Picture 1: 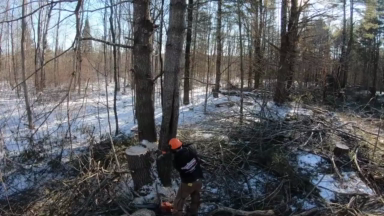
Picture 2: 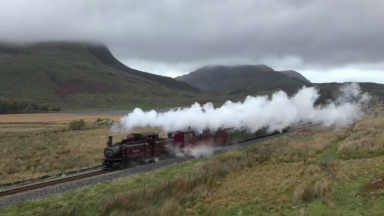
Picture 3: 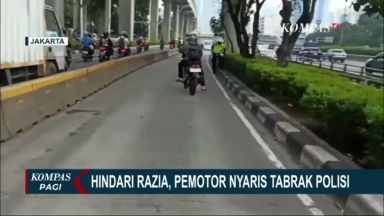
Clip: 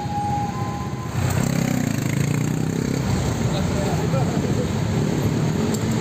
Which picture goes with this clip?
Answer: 3